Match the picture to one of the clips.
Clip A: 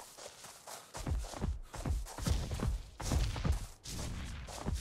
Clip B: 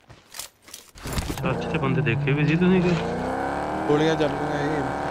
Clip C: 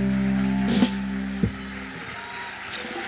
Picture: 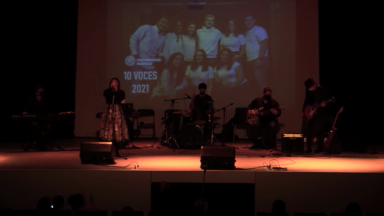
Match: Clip C